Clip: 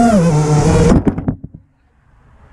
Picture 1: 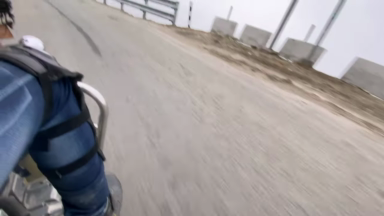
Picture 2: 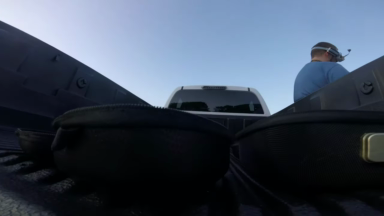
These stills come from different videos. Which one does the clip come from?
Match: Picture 2